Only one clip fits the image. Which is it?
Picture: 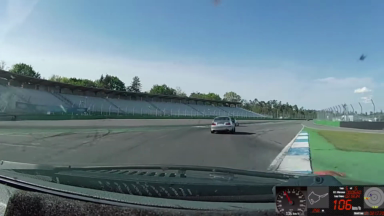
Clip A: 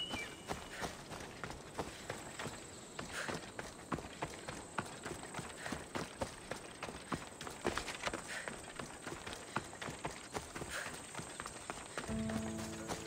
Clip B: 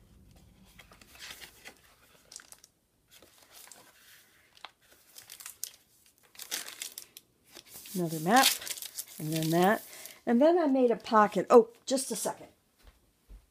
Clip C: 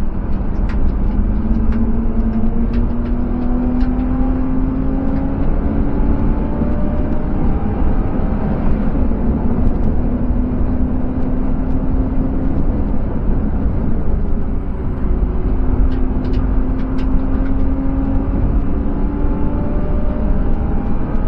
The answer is C